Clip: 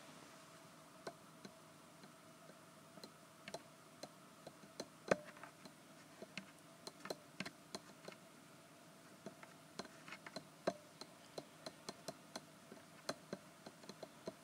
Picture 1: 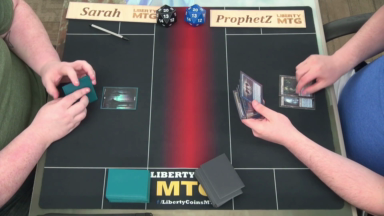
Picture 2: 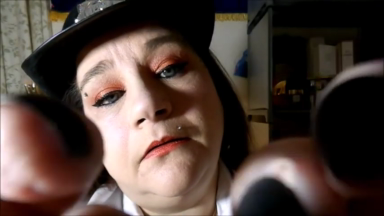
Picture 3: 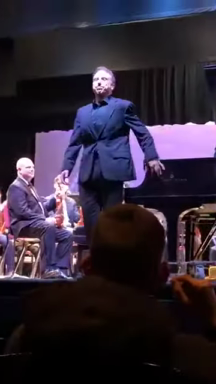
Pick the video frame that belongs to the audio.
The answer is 2